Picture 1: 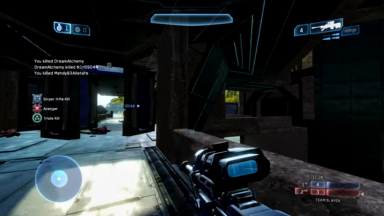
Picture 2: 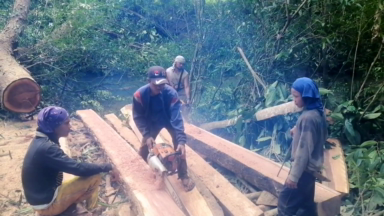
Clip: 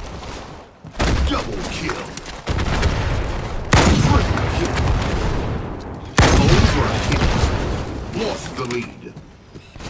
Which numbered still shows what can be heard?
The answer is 1